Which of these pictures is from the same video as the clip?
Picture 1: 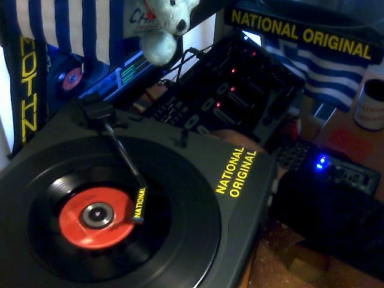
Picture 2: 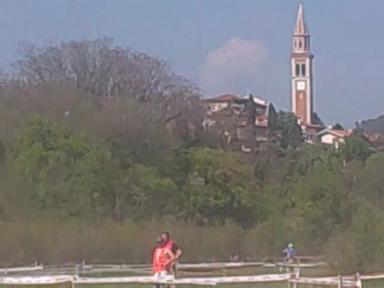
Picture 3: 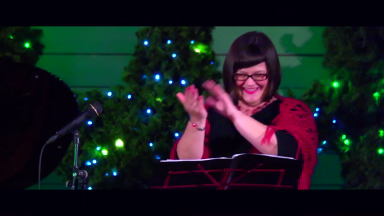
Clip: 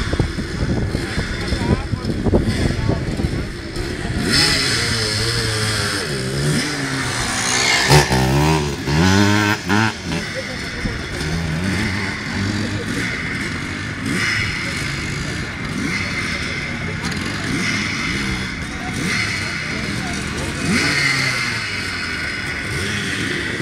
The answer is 2